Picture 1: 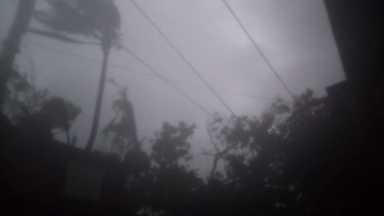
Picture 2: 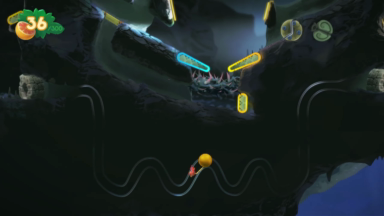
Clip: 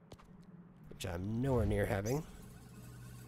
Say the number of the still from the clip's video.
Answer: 2